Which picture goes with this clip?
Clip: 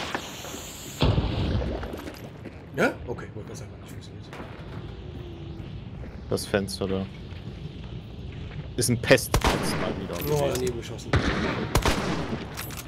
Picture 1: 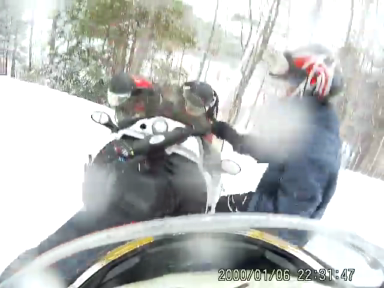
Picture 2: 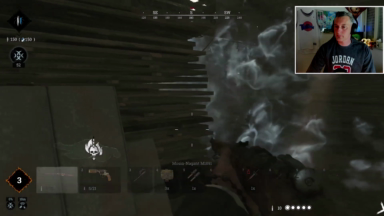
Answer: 2